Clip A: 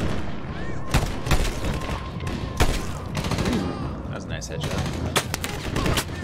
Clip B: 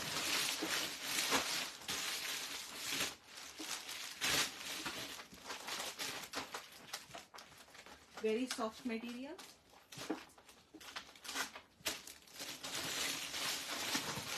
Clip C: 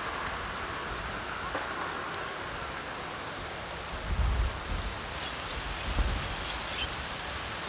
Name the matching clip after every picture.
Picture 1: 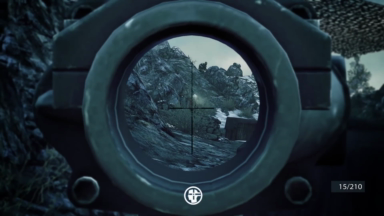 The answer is A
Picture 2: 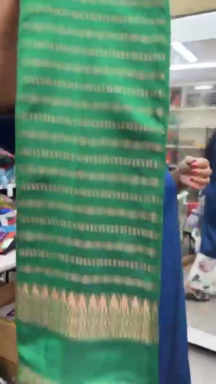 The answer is B